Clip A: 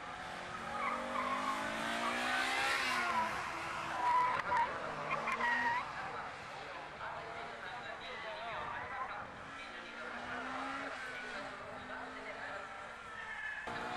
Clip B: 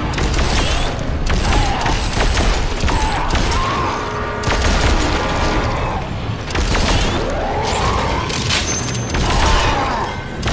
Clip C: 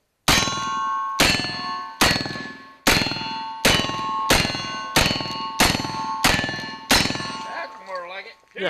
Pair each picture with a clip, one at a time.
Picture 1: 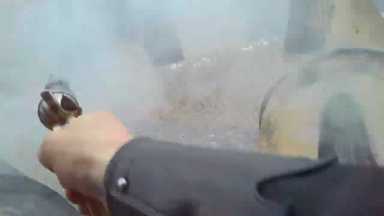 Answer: C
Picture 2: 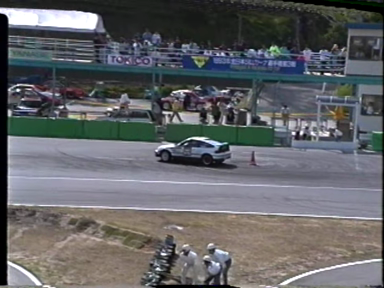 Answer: A